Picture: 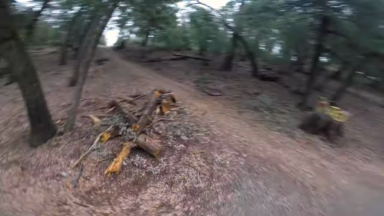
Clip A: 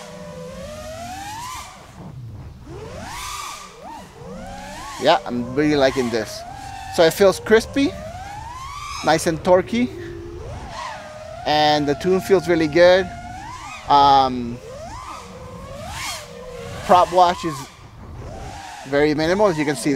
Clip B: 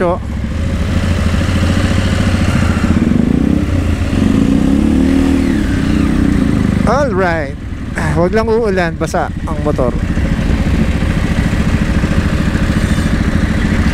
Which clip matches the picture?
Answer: A